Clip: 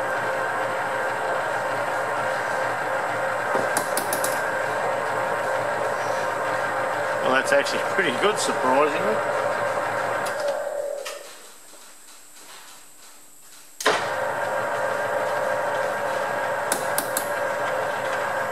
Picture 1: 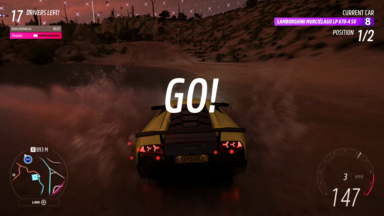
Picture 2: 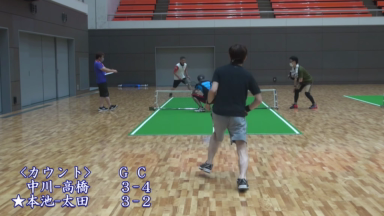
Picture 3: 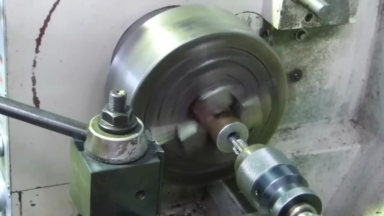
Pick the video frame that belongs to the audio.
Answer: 3